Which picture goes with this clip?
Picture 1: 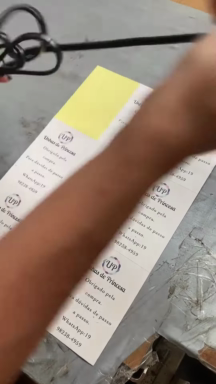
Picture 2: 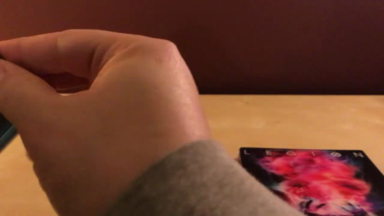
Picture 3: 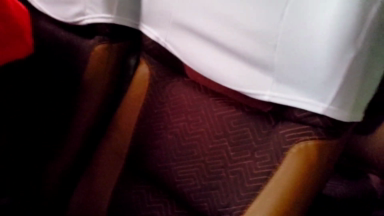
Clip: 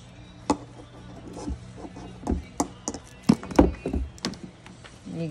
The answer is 1